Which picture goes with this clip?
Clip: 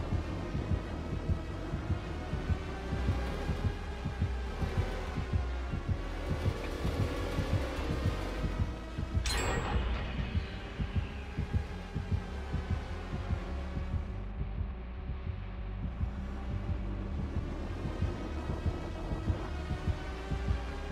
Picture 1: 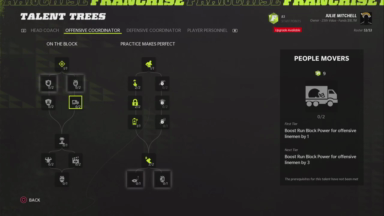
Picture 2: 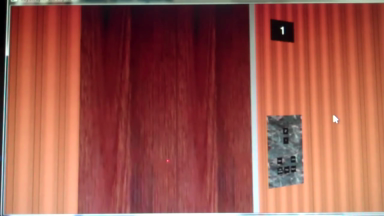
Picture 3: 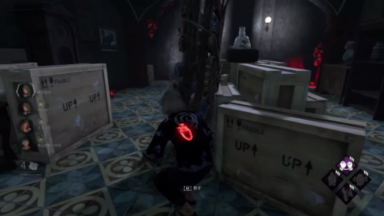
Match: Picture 3